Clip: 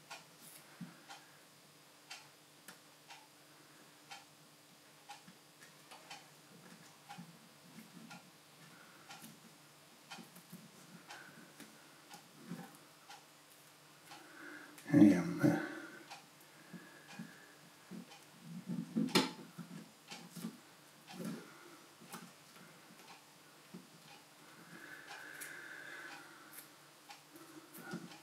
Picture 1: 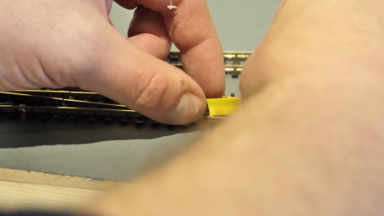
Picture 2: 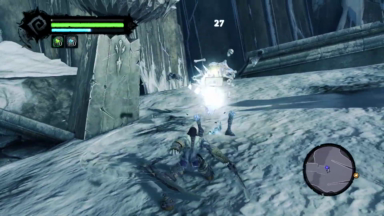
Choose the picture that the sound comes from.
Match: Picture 1